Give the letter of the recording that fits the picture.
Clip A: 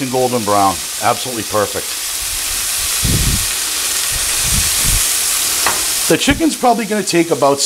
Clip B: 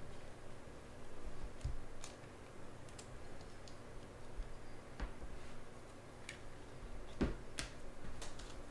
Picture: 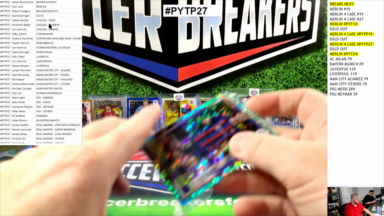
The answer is B